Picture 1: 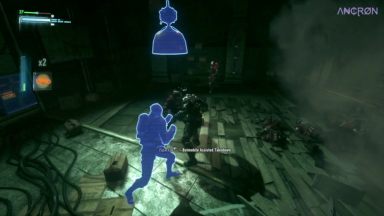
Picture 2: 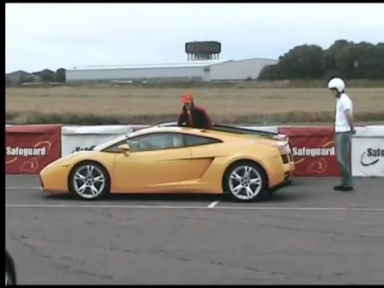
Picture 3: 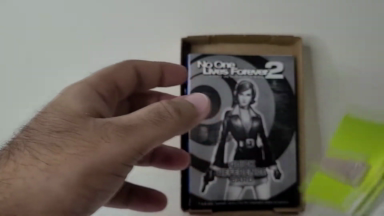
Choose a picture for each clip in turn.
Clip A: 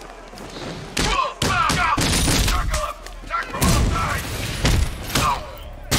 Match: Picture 1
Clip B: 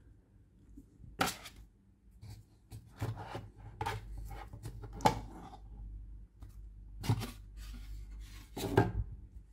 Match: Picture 3